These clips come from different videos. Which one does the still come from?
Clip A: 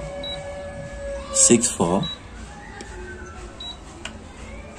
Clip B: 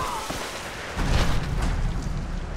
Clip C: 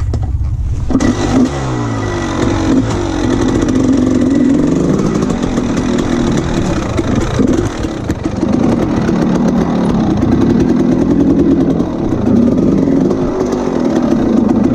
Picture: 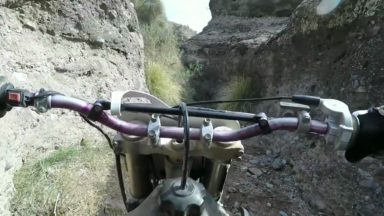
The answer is C